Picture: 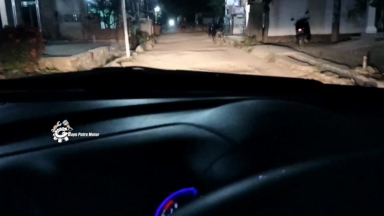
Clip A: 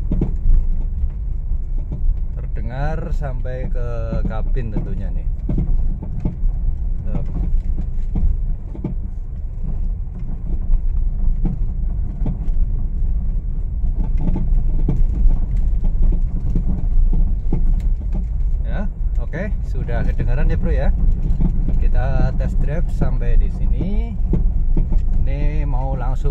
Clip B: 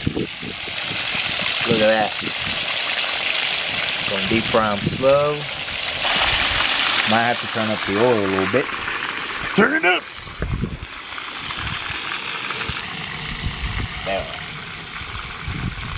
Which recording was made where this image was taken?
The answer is A